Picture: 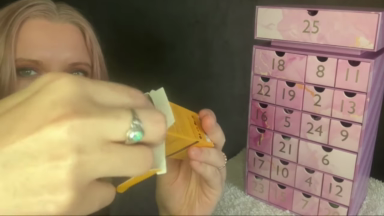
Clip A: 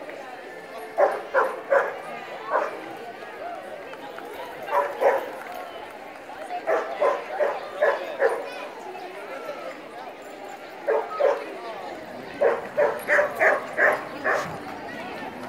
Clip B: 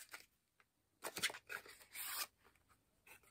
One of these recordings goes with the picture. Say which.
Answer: B